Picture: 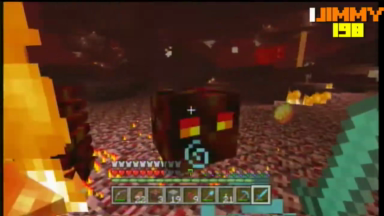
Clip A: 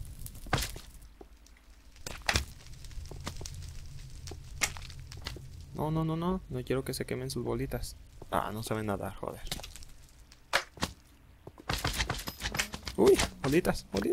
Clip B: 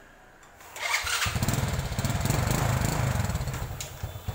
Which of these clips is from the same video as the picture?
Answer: A